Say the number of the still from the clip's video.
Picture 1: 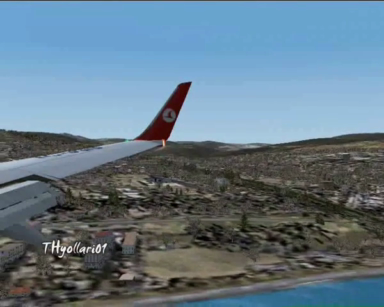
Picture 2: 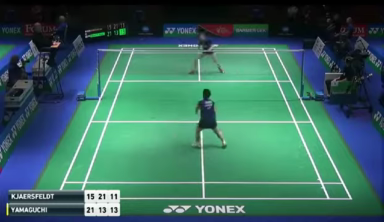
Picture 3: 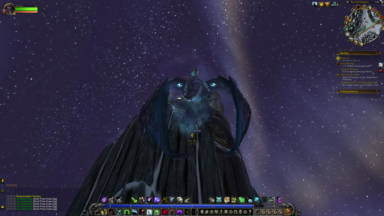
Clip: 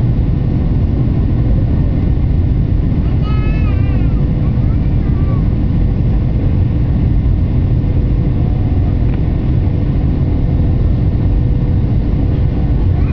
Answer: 1